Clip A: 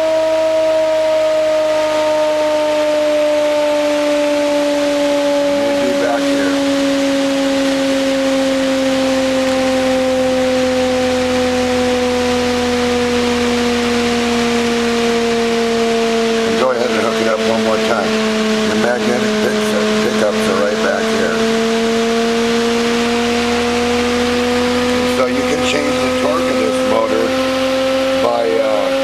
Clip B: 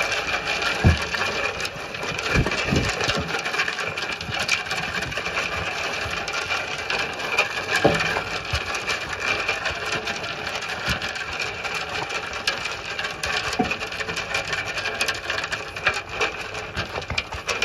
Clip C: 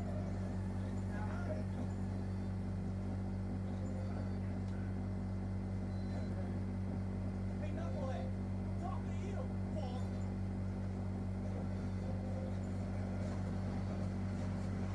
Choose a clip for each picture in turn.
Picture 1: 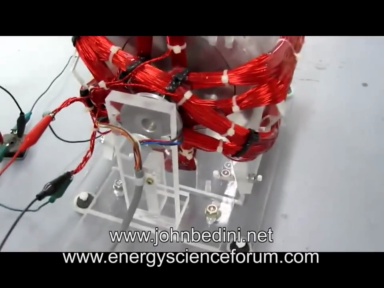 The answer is A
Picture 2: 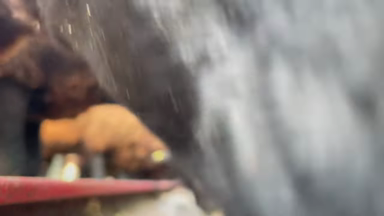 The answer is B